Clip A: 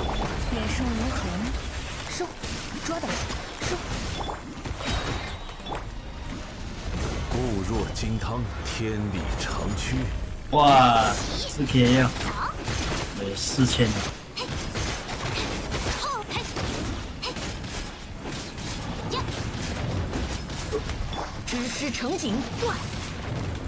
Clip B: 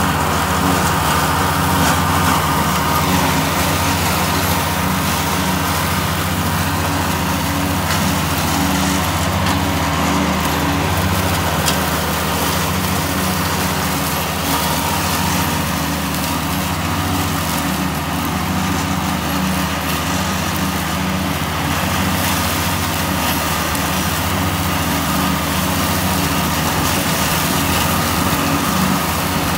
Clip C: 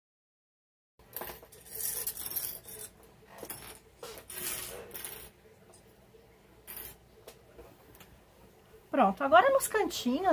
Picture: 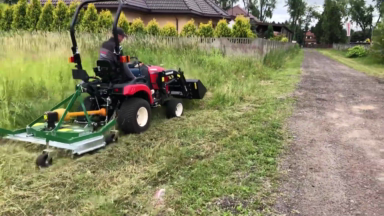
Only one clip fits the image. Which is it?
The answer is B